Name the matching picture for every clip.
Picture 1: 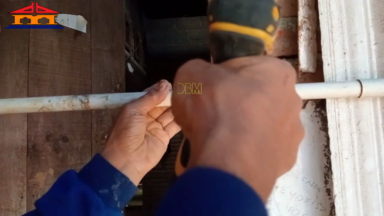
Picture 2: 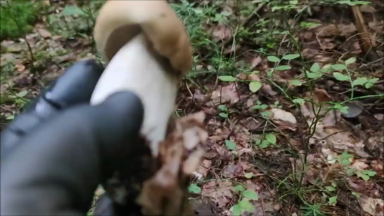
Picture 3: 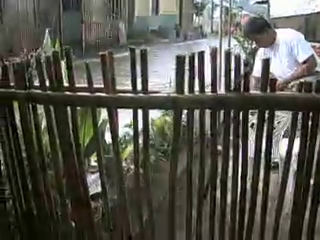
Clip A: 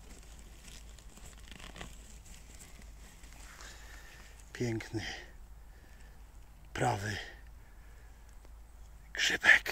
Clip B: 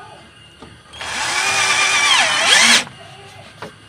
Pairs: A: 2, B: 1